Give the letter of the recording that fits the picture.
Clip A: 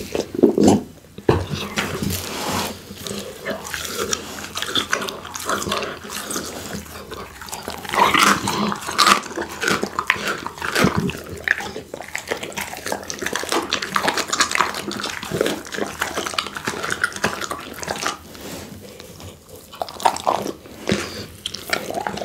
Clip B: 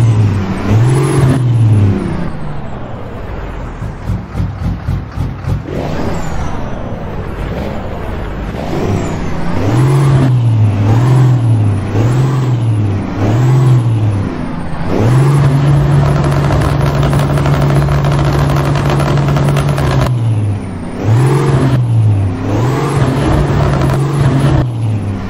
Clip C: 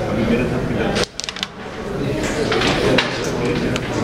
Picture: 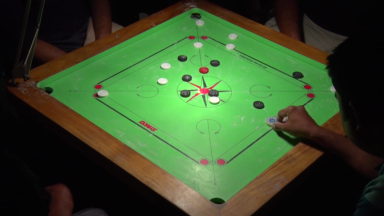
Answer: C